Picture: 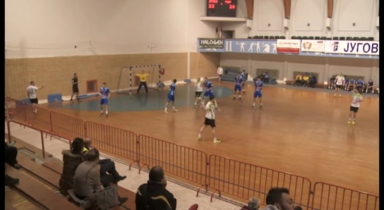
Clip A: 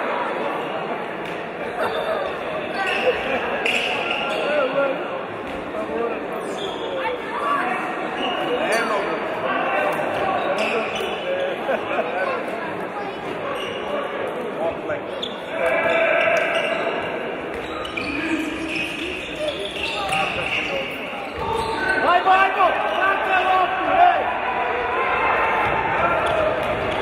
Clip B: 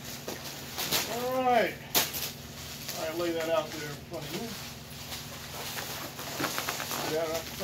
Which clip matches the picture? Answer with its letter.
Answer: A